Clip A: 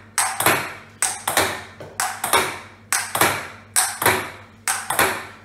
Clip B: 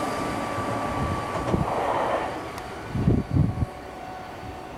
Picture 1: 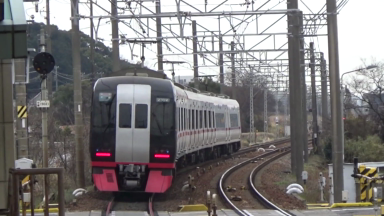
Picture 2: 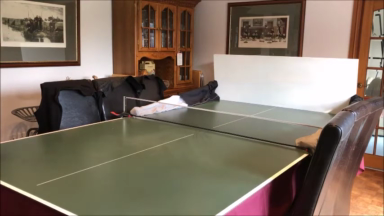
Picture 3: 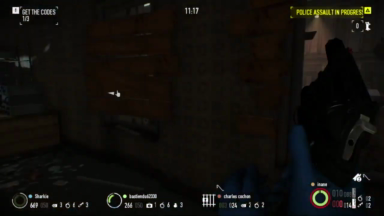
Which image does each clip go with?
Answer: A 2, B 1